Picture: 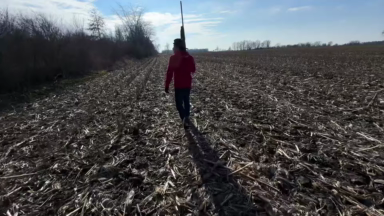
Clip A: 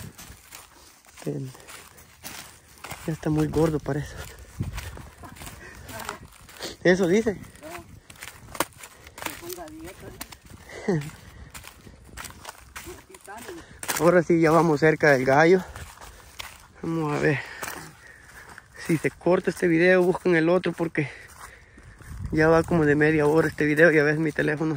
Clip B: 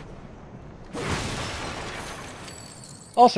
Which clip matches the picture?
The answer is A